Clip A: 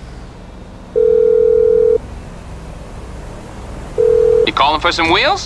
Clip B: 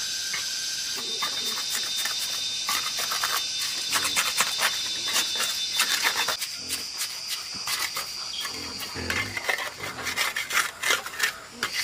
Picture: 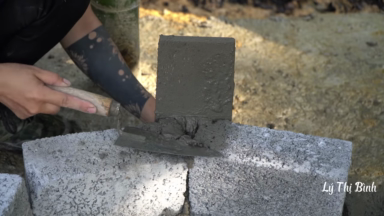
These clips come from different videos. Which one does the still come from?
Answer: B